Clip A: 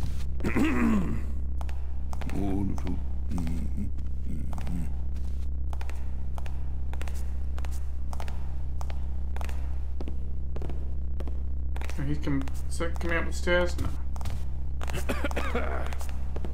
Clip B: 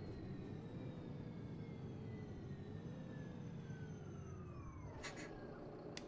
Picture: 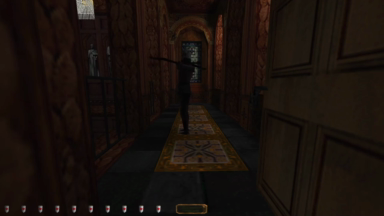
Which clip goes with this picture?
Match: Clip A